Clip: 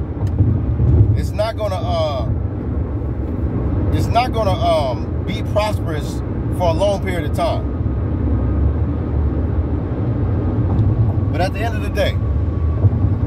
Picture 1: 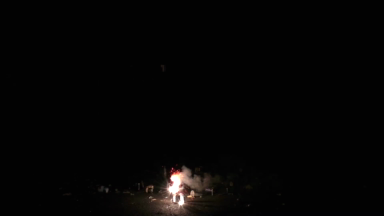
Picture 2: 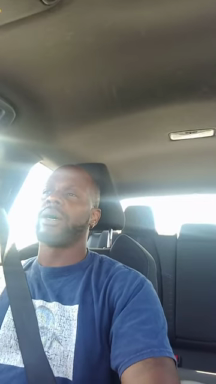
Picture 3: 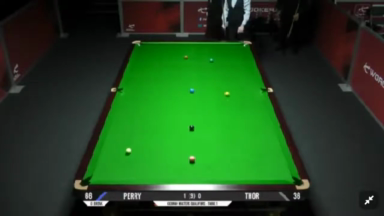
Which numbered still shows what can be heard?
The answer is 2